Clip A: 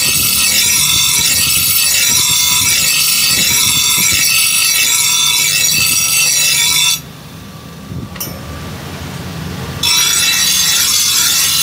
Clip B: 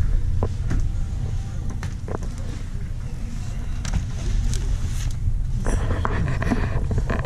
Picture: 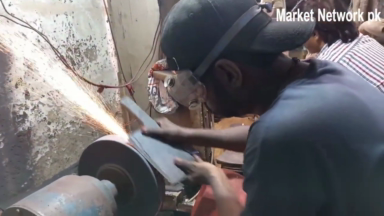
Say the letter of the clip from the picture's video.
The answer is A